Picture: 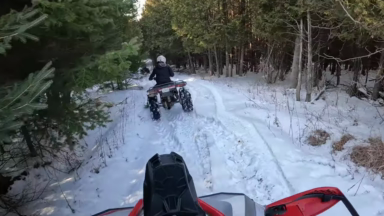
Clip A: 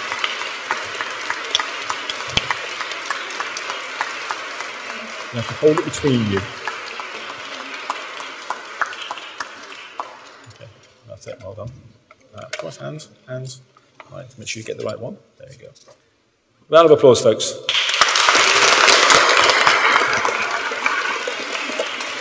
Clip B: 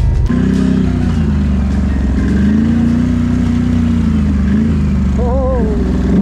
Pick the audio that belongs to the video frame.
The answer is B